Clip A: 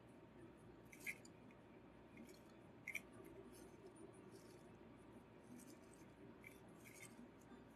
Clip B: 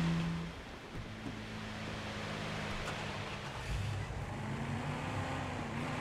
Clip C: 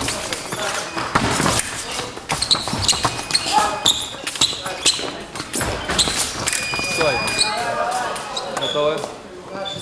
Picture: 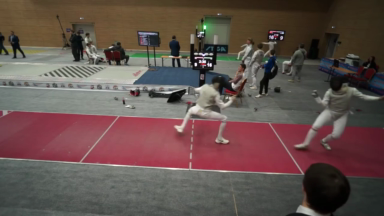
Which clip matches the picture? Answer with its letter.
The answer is C